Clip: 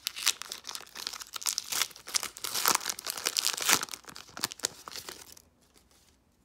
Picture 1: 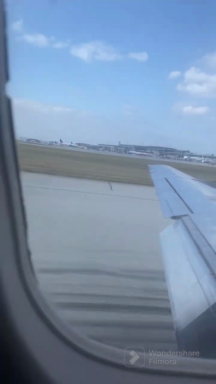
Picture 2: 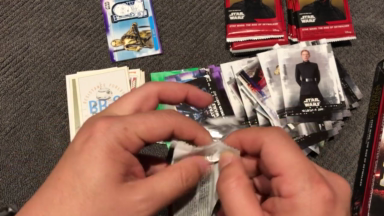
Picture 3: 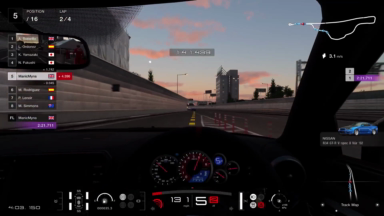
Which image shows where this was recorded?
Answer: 2